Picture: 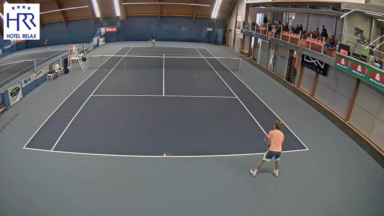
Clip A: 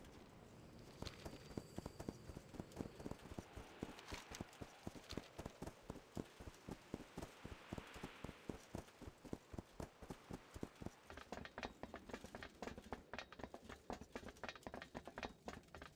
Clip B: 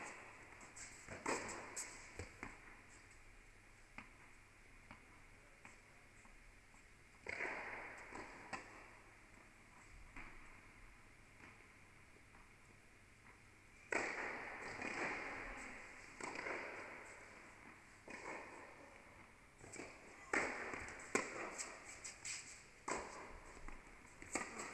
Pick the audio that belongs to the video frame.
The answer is B